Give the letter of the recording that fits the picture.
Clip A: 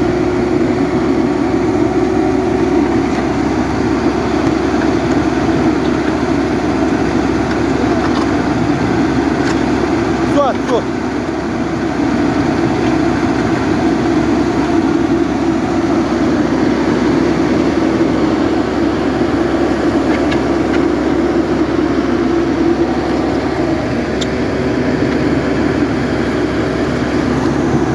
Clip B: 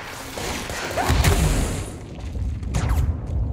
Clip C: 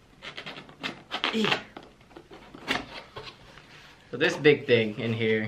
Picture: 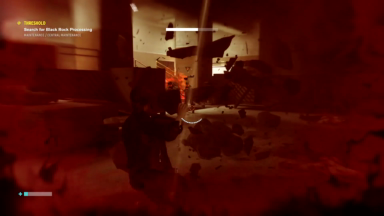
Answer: B